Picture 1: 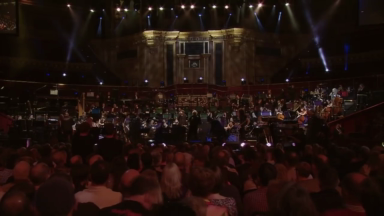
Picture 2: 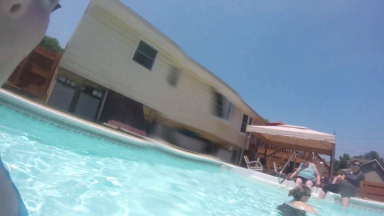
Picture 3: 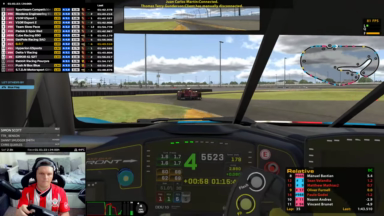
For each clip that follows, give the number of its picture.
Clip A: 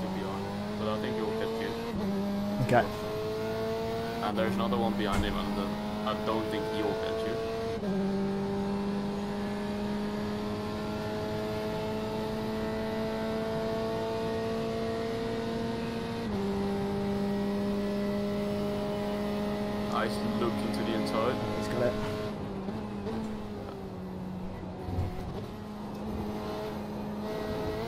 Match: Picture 3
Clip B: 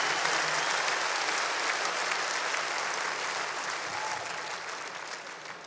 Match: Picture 1